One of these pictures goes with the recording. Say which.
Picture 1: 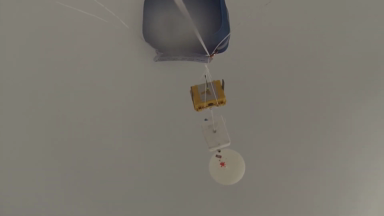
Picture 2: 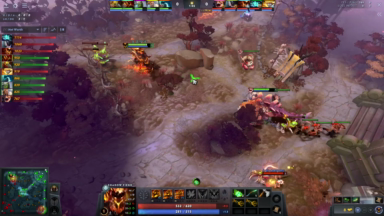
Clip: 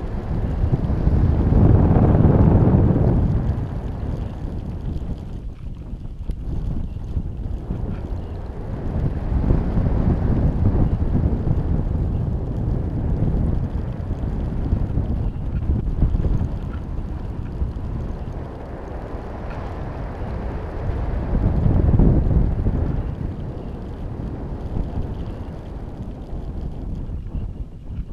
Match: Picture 1